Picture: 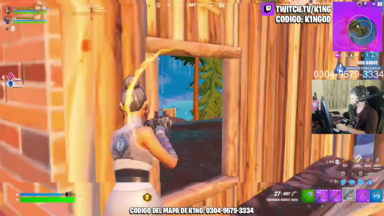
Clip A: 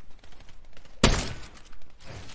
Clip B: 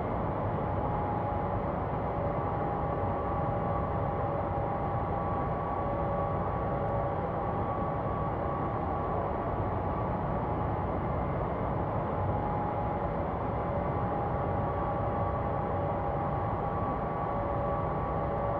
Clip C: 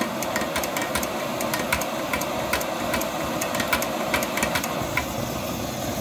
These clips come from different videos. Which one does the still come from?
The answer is A